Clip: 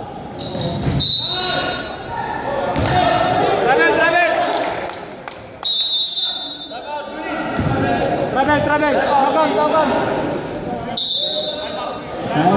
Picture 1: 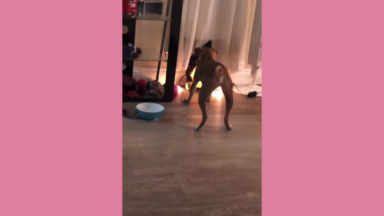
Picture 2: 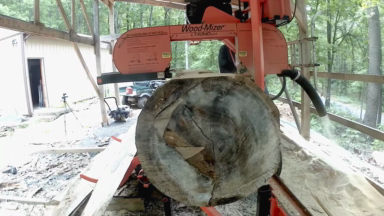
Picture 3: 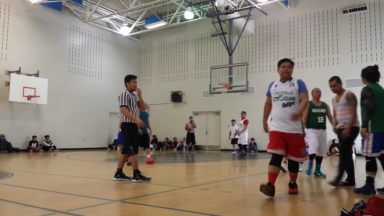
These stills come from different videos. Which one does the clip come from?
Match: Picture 3